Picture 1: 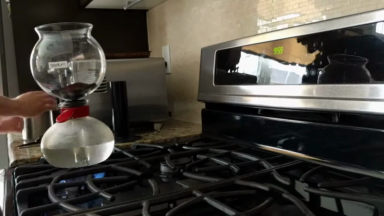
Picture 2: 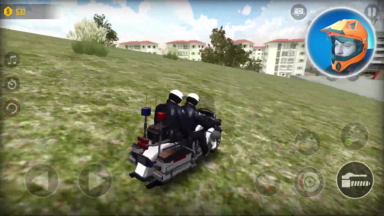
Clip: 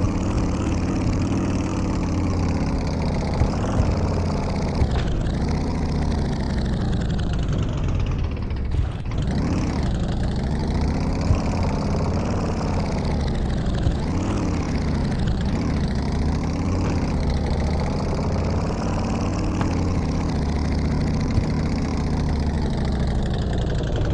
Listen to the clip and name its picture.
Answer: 2